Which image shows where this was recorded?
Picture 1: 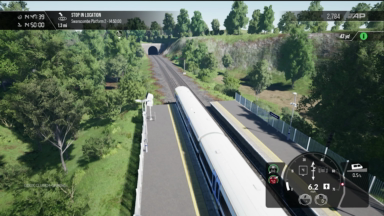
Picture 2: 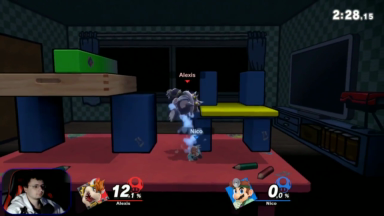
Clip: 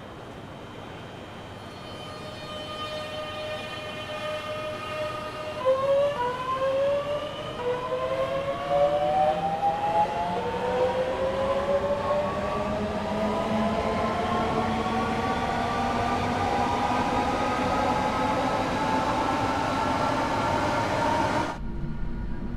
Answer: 1